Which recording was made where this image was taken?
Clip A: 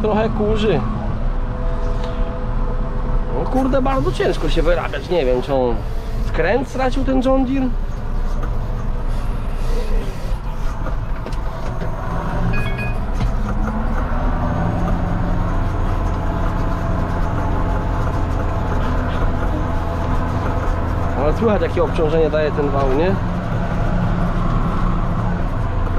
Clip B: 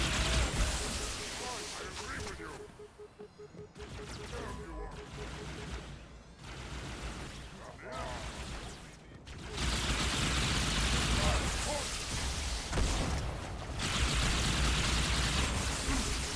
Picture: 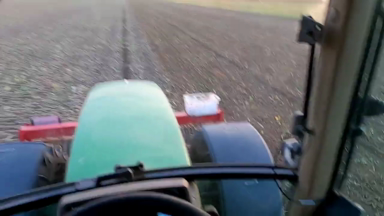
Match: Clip A